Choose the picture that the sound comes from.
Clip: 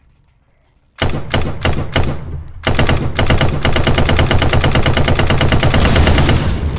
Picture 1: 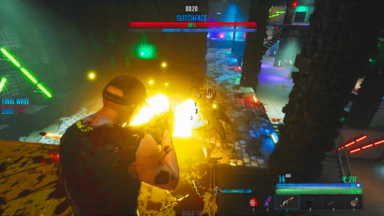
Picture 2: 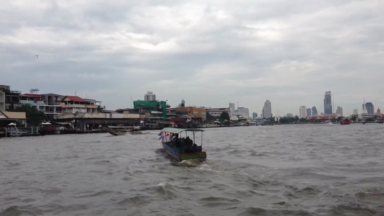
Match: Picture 1